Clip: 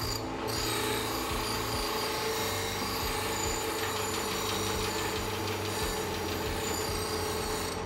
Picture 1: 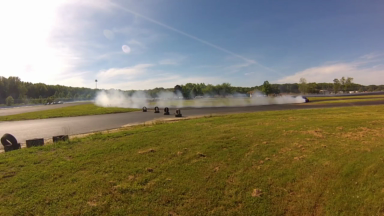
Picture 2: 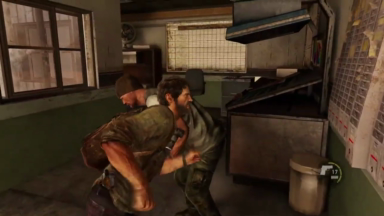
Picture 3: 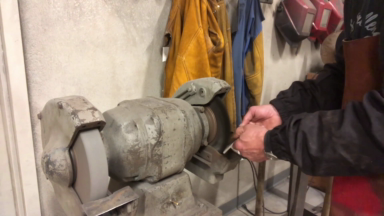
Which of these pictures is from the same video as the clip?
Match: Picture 3